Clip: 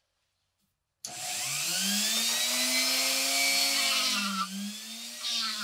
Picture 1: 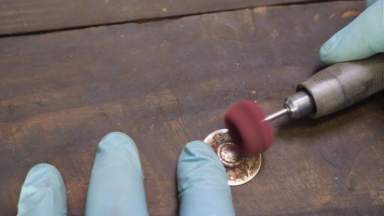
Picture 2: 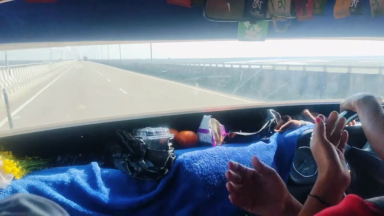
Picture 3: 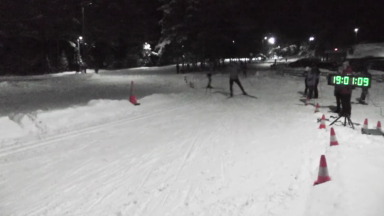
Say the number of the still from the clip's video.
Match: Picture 1